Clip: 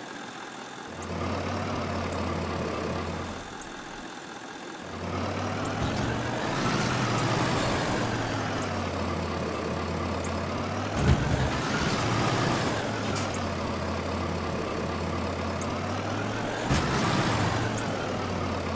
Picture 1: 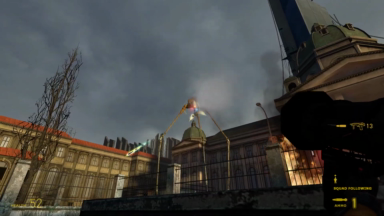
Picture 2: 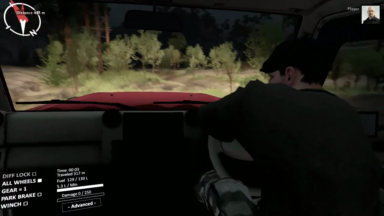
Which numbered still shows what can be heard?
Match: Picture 2